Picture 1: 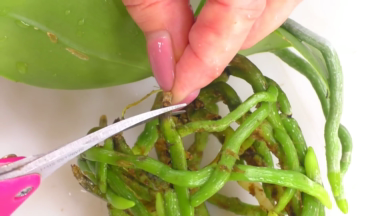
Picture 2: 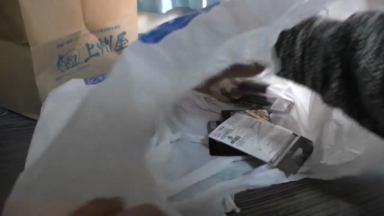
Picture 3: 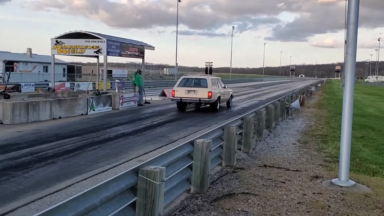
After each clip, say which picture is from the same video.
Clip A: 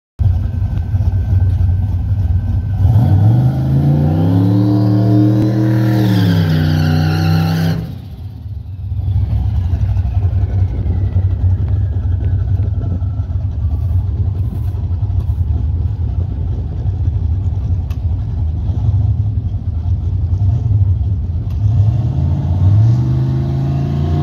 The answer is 3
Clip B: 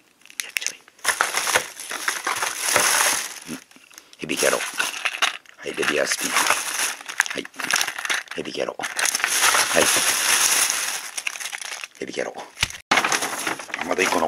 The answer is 2